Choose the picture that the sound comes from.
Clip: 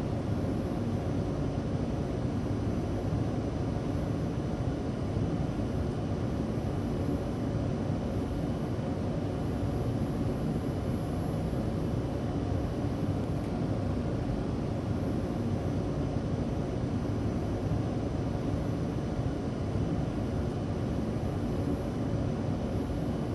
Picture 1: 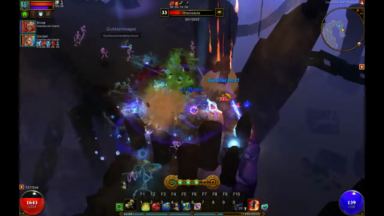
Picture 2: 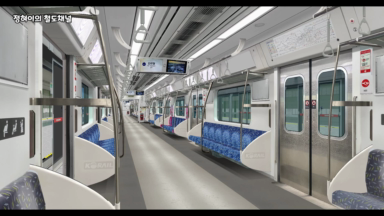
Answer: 2